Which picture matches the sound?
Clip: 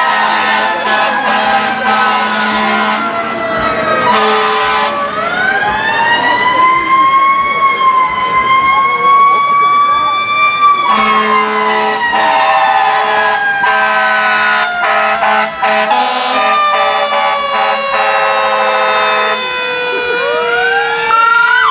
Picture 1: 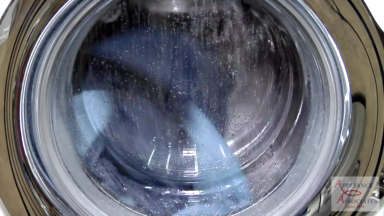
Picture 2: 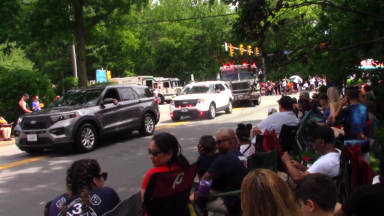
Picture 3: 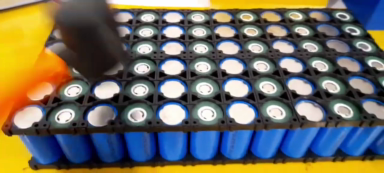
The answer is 2